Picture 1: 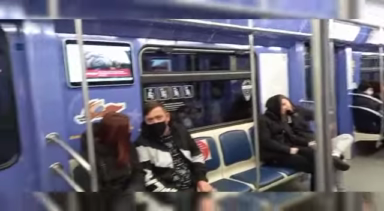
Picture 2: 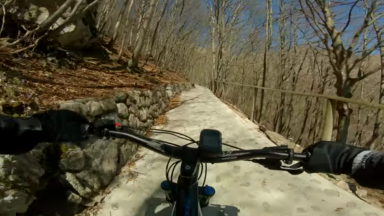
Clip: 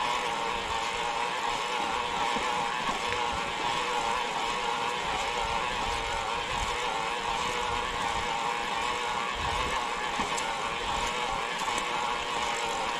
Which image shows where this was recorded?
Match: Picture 2